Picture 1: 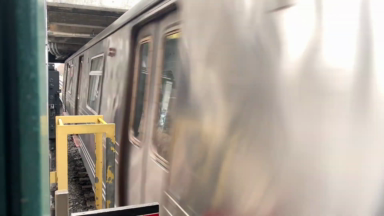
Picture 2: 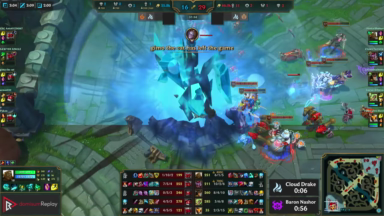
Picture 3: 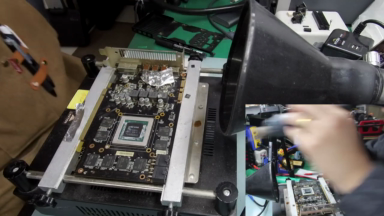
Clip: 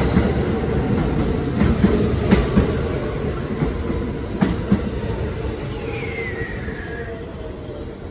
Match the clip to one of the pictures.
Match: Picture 1